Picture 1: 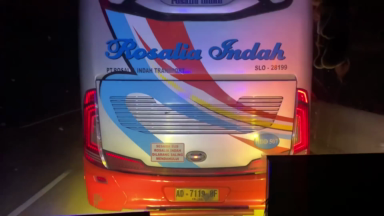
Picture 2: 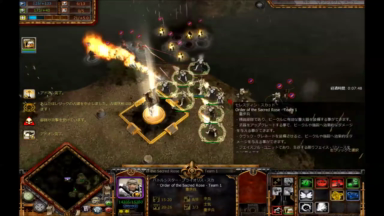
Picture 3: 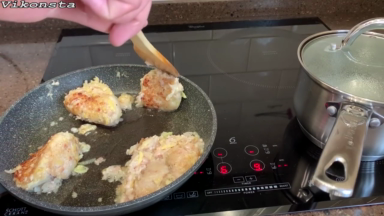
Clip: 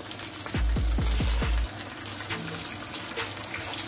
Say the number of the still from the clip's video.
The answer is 3